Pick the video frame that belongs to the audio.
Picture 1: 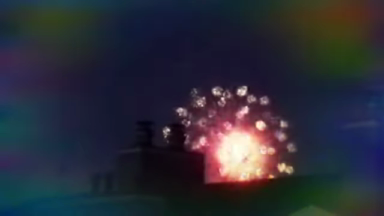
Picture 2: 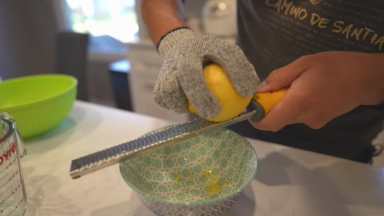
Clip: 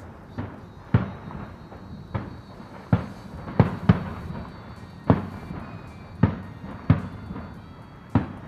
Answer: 1